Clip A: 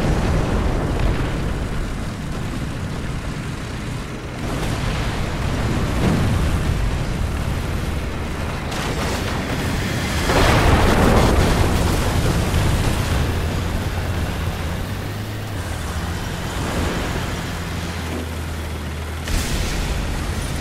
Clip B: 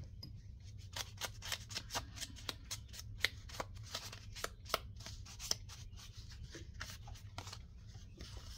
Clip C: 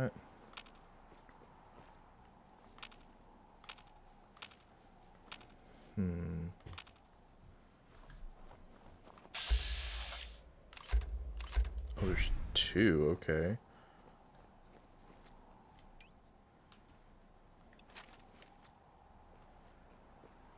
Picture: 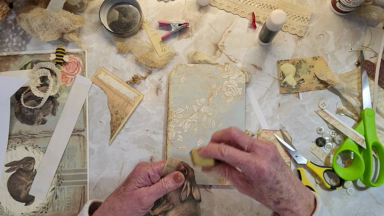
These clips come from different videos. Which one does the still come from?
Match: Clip B